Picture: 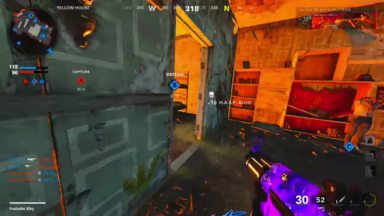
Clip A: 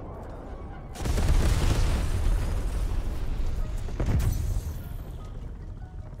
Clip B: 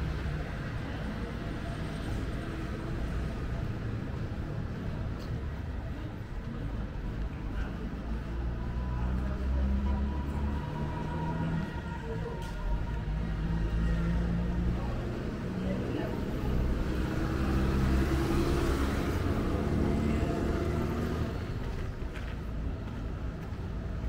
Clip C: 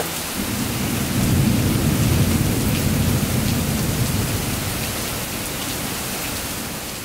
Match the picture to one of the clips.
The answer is A